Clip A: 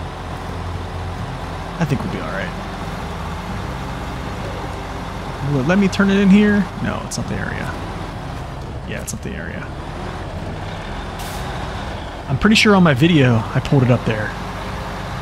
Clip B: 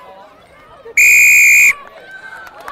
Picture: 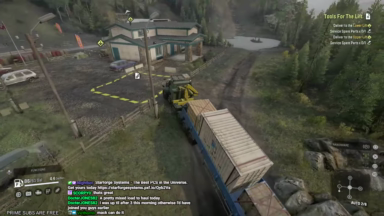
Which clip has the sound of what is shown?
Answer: A